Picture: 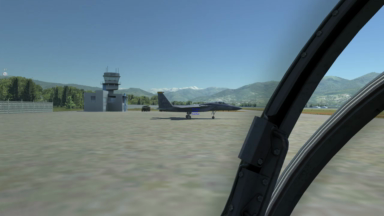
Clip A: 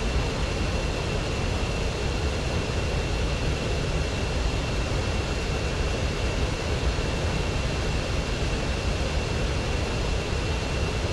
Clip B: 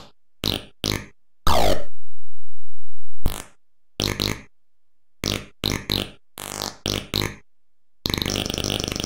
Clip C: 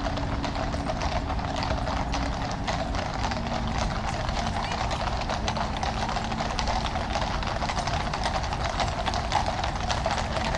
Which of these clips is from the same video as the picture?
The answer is A